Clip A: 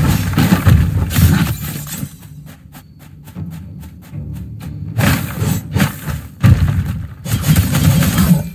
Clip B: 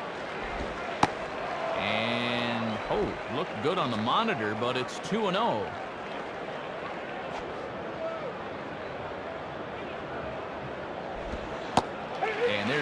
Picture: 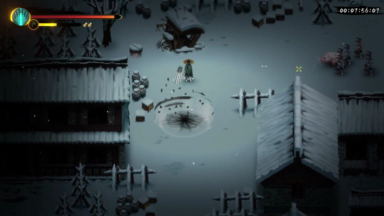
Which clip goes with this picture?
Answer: A